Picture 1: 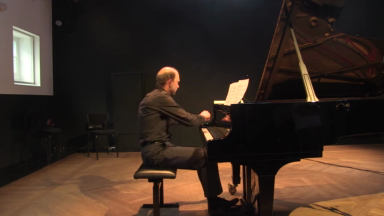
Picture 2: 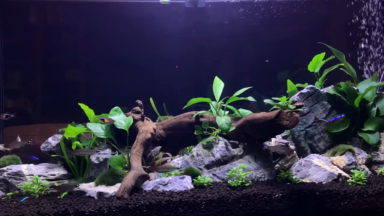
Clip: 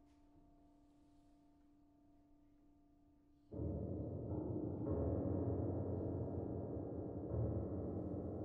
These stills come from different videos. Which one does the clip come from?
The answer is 1